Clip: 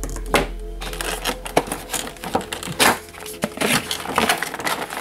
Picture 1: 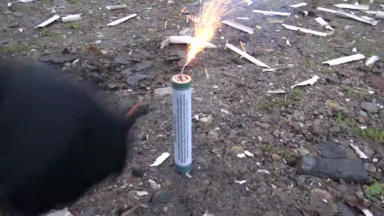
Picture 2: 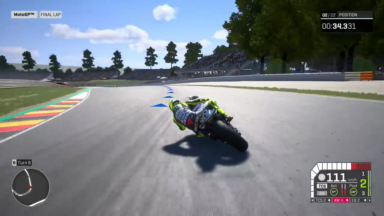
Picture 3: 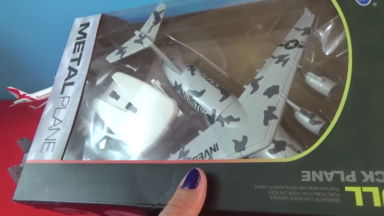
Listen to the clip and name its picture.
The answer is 3